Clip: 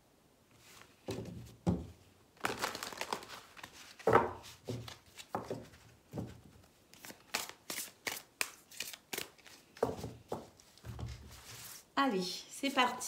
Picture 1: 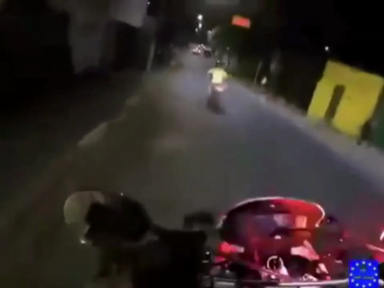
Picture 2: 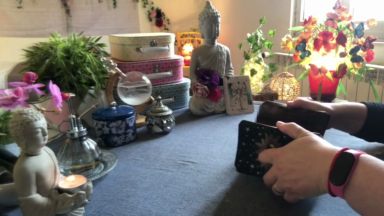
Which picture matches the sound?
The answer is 2